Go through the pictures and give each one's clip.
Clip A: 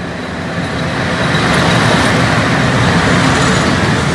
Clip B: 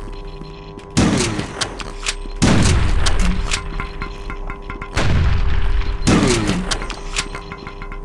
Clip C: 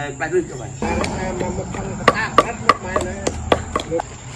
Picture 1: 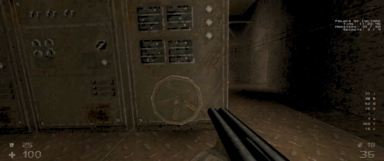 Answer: B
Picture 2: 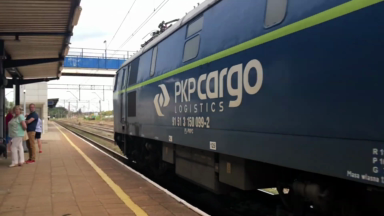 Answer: A